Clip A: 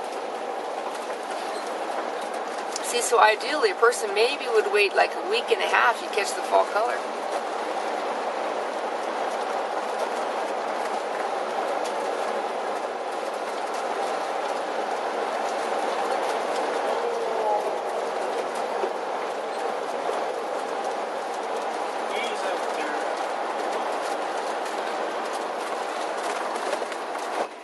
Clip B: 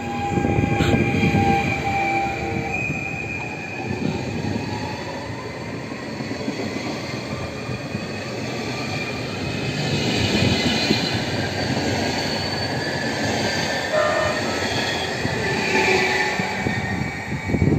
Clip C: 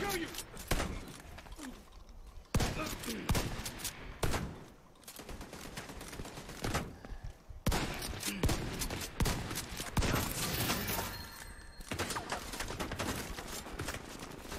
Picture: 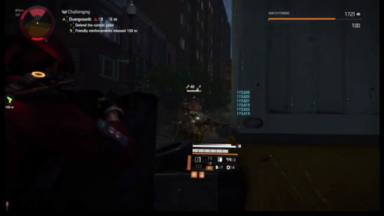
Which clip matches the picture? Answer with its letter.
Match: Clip C